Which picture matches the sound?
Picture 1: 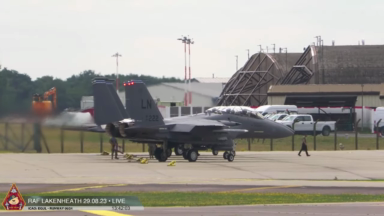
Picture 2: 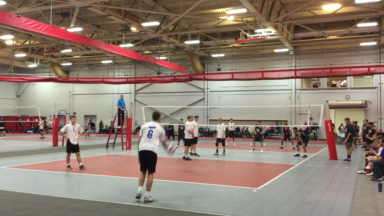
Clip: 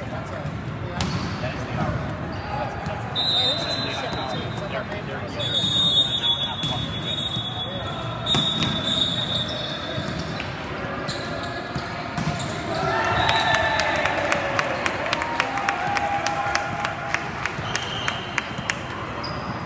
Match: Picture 2